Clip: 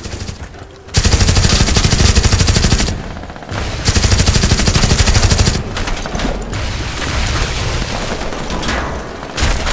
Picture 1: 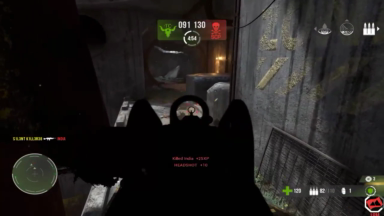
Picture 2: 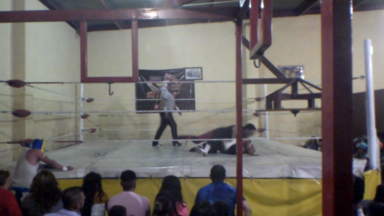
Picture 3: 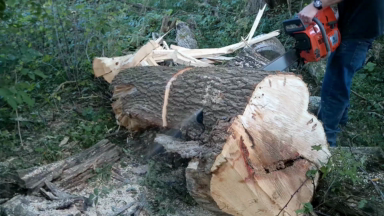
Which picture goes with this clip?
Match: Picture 1